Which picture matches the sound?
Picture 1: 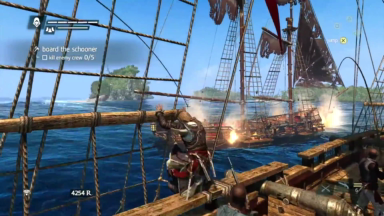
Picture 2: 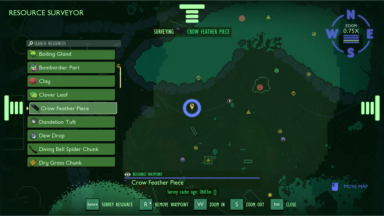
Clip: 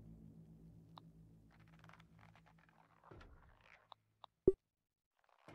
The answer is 2